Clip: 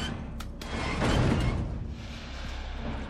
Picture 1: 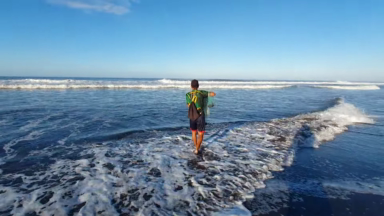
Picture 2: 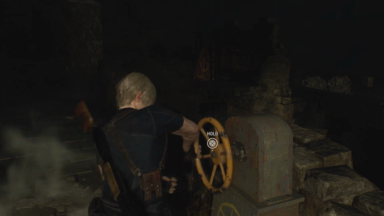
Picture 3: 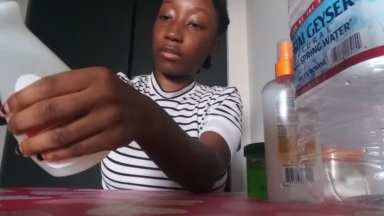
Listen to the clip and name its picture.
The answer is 2